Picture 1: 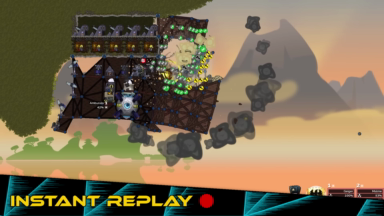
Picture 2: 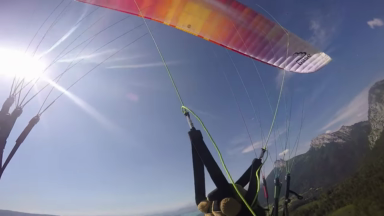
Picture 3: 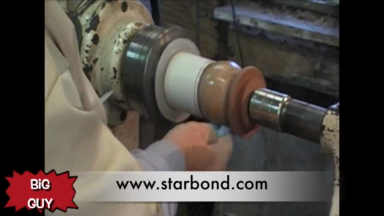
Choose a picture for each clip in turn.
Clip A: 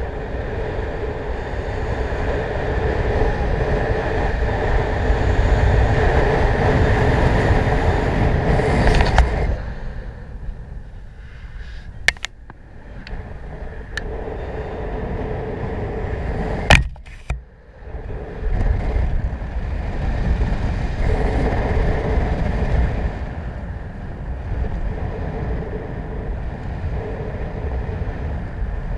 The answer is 2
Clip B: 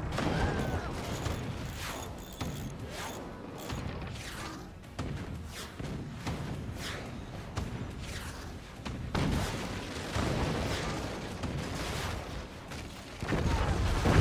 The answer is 1